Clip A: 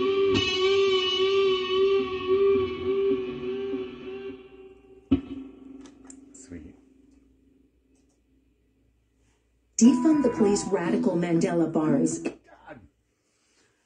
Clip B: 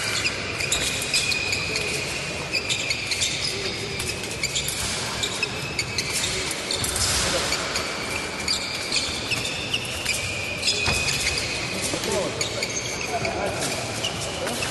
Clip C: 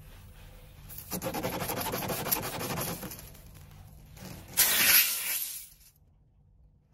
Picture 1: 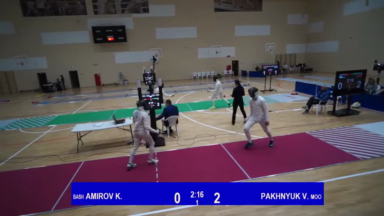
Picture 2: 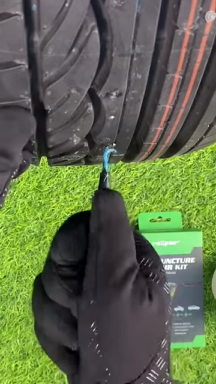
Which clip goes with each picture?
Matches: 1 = B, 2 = C